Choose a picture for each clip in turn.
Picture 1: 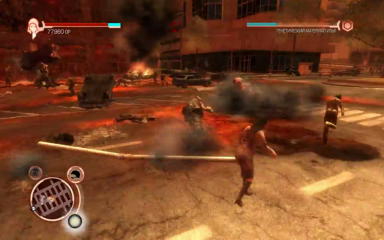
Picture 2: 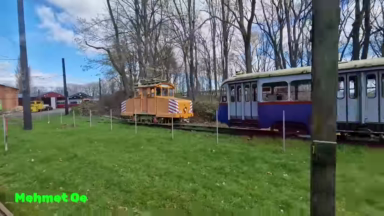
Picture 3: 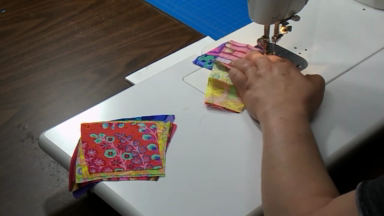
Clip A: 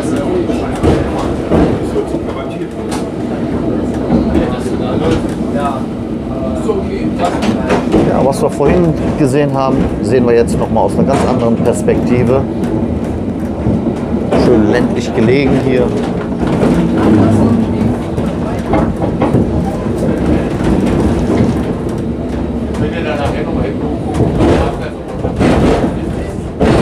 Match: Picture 2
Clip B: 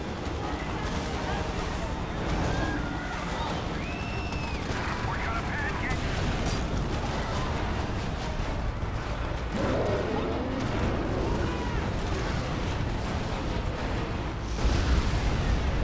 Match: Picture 1